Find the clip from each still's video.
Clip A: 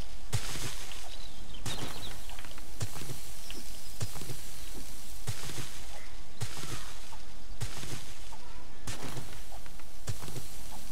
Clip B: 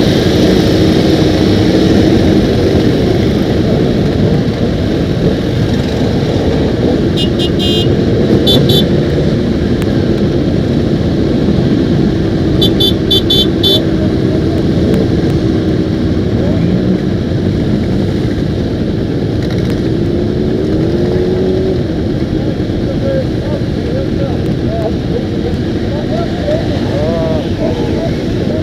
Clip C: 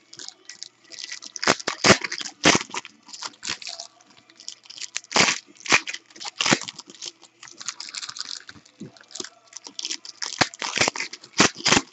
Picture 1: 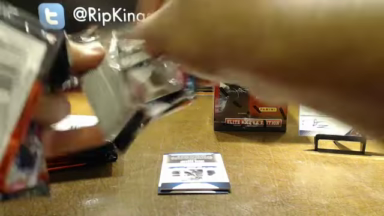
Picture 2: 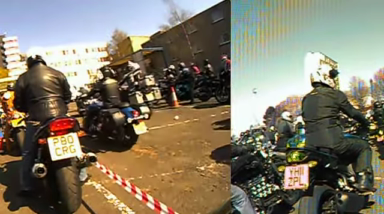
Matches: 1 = C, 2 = B